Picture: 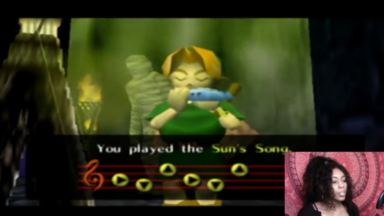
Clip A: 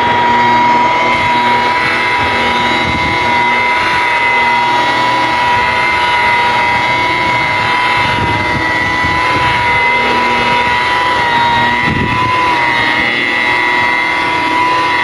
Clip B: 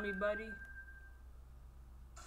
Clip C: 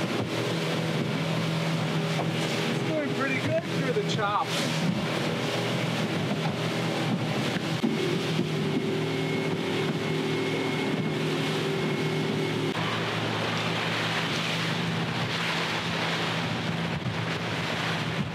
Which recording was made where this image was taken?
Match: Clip B